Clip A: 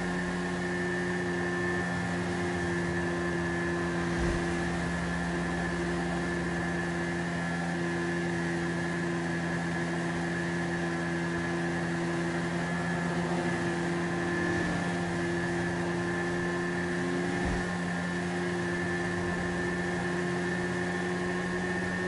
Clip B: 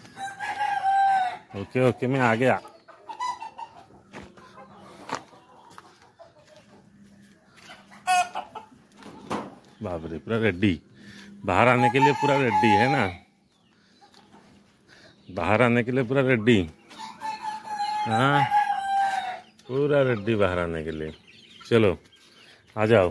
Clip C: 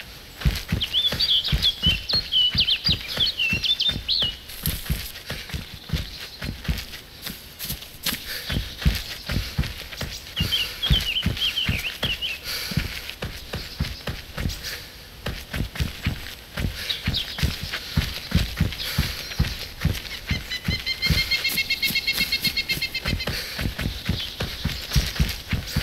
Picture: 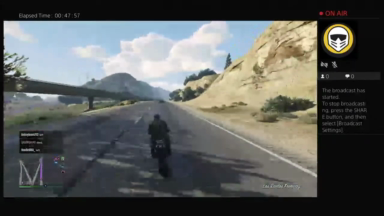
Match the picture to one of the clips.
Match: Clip A